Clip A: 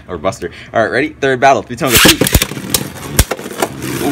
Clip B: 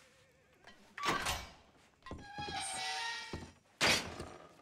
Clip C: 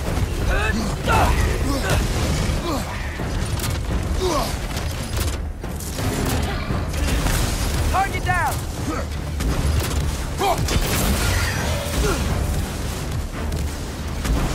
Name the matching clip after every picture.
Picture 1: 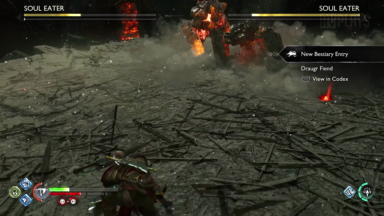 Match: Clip C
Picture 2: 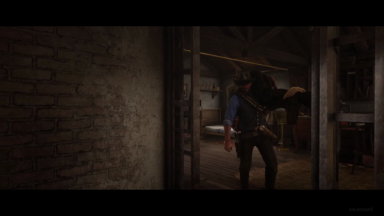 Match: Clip B